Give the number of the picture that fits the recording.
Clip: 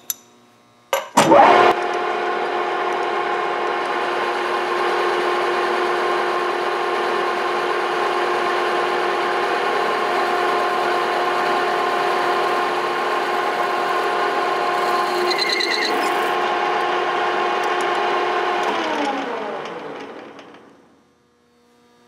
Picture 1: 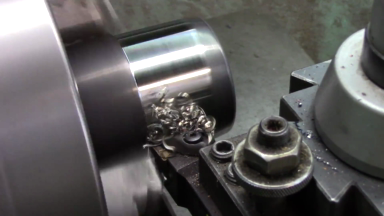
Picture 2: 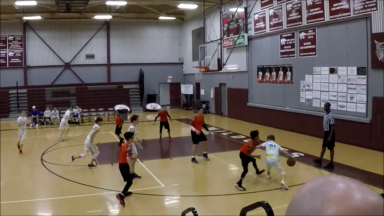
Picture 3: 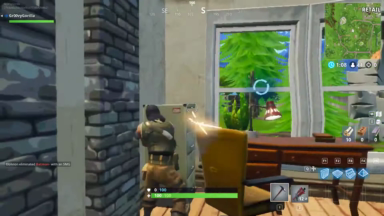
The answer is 1